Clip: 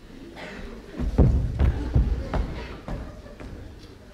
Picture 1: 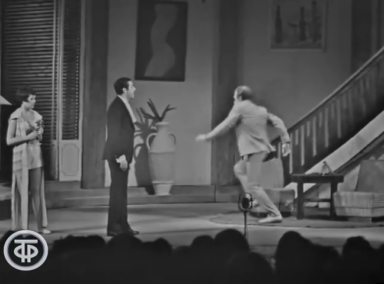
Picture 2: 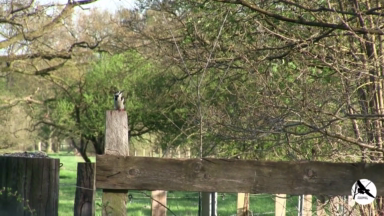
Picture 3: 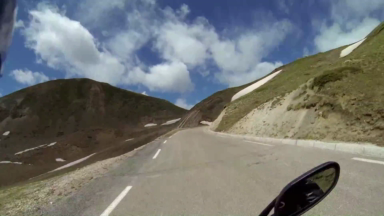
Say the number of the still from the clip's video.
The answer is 1